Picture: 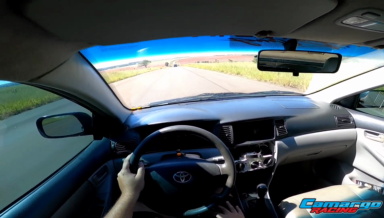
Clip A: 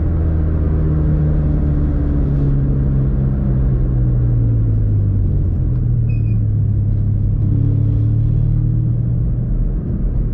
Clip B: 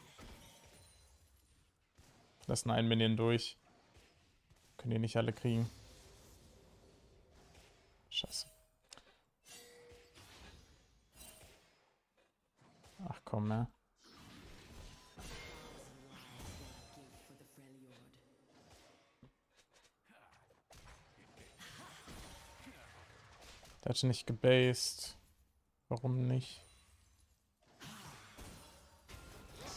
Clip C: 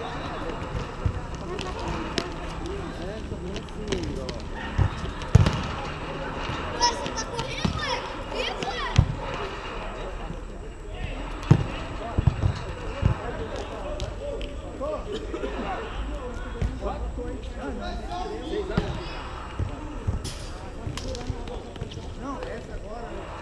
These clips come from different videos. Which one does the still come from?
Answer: A